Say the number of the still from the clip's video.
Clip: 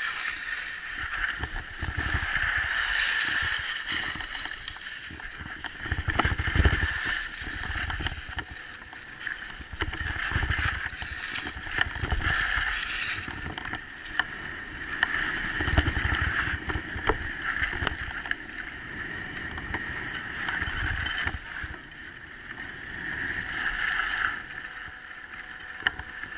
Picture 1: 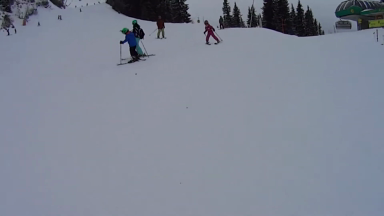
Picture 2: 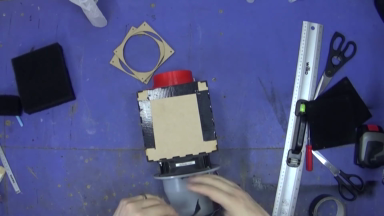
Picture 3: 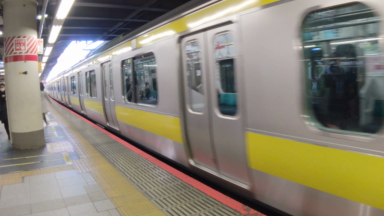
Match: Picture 1